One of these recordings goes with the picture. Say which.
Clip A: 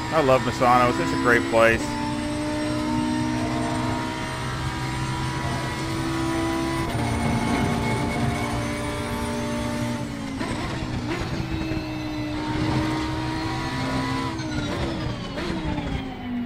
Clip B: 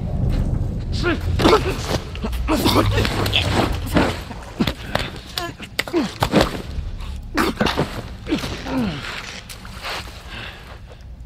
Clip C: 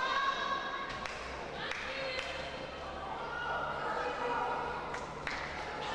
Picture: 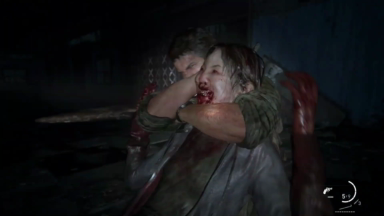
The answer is B